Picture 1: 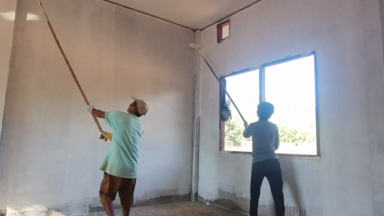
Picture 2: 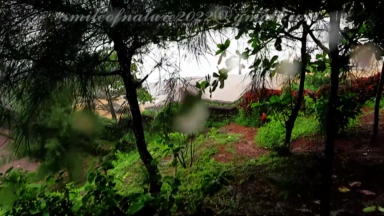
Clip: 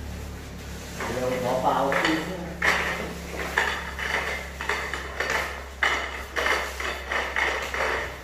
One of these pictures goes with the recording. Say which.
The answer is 1